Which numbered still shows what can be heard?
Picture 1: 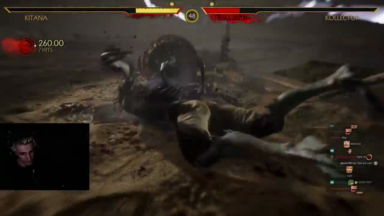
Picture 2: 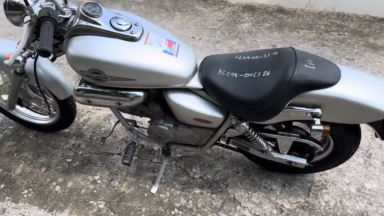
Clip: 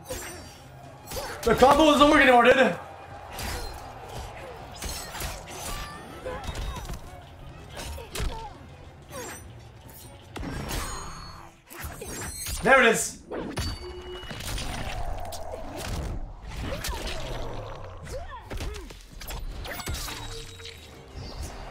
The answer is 1